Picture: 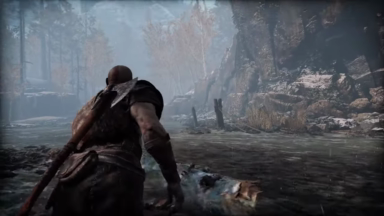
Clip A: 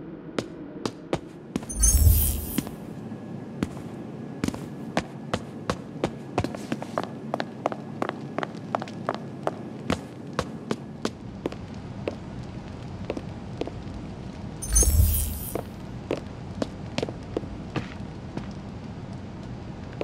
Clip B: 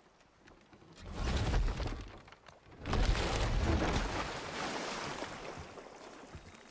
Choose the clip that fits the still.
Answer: B